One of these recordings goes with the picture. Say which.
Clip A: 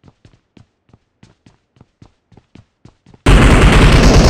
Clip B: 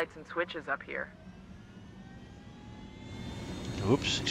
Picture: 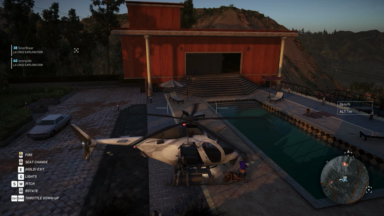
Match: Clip B